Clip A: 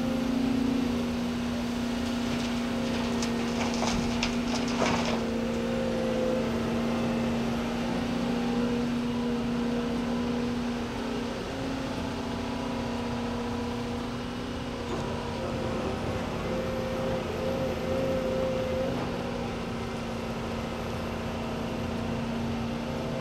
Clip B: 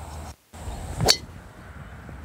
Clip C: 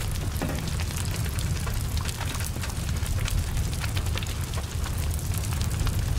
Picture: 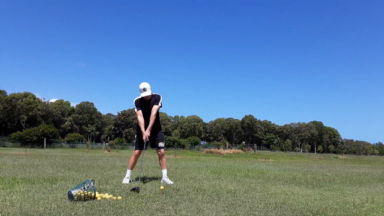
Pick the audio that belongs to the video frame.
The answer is B